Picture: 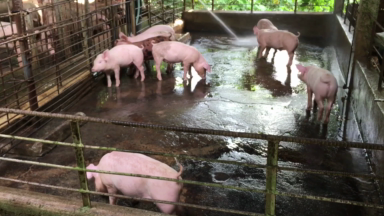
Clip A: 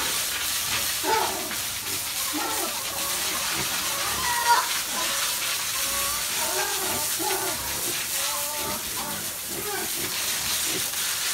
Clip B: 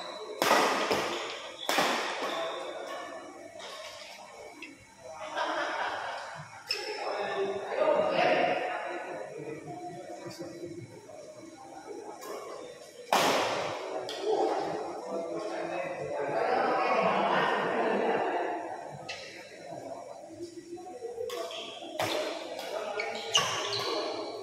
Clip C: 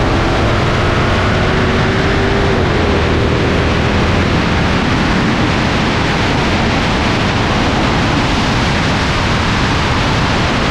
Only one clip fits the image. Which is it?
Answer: A